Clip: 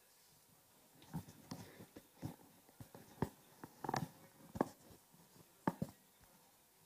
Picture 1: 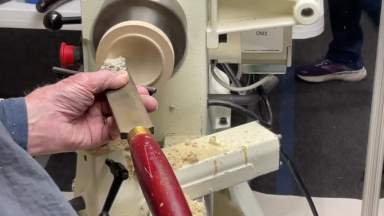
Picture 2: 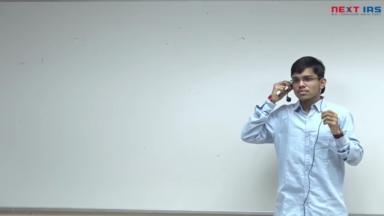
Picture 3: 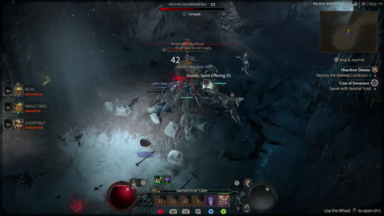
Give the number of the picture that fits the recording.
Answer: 2